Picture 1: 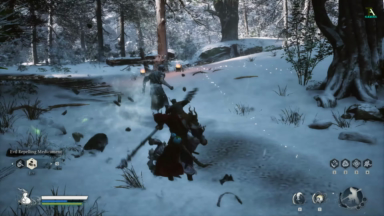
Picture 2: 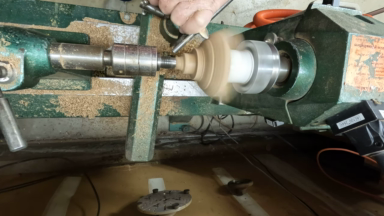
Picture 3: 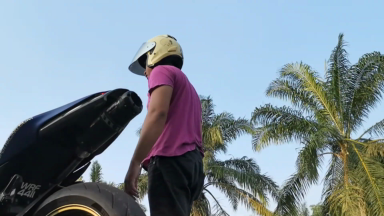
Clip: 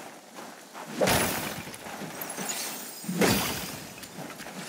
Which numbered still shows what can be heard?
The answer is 1